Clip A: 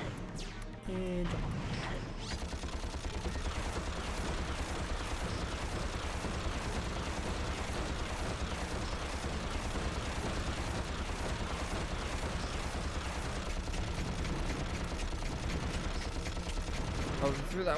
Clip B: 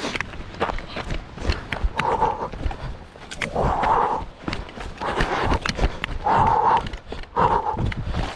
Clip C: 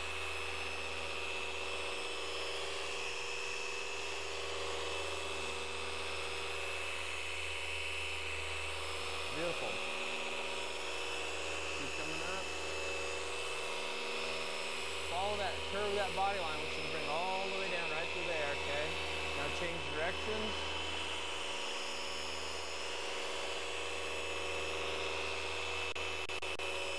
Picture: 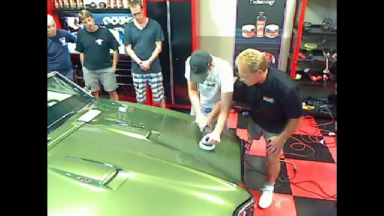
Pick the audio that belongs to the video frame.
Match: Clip C